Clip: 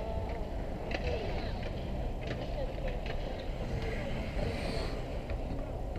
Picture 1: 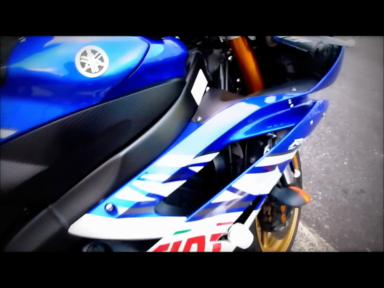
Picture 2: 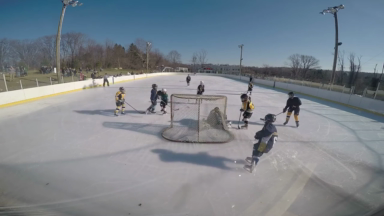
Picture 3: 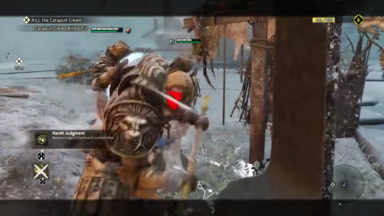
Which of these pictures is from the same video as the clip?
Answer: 2